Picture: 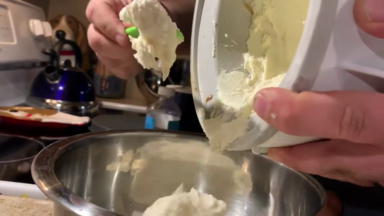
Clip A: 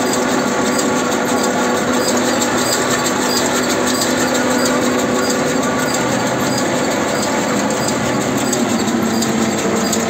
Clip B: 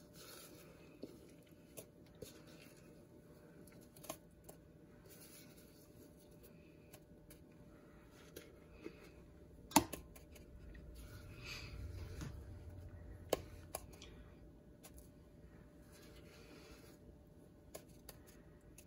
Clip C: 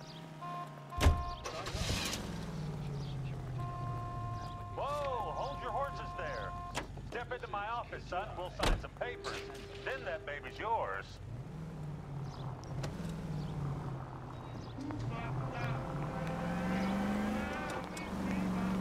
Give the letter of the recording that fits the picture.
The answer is B